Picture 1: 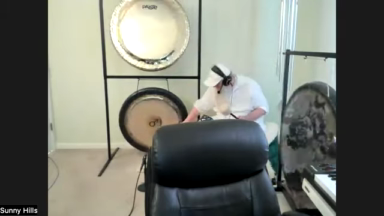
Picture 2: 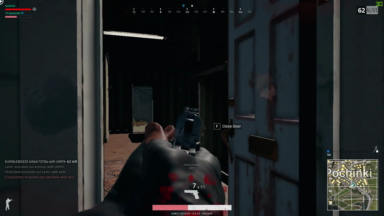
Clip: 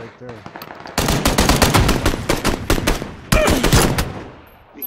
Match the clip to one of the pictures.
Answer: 2